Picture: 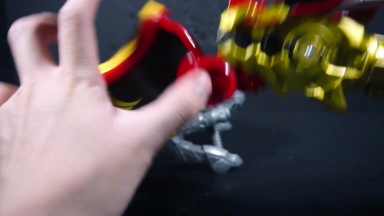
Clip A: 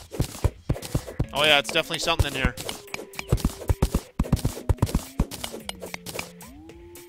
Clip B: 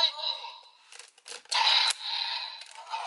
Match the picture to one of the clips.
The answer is B